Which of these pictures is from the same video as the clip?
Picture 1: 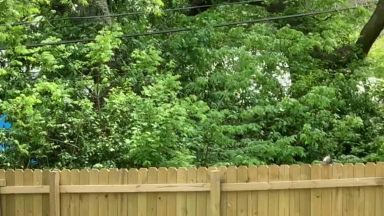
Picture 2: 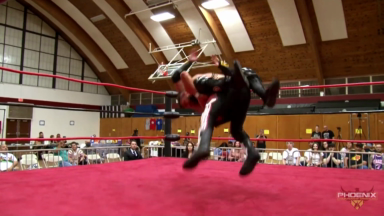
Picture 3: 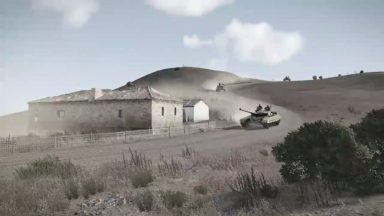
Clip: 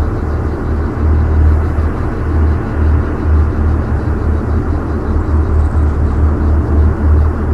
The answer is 3